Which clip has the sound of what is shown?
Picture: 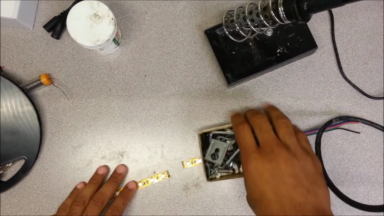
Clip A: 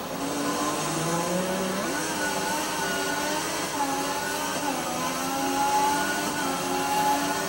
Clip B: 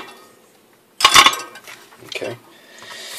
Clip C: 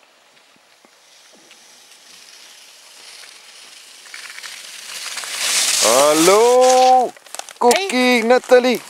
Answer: B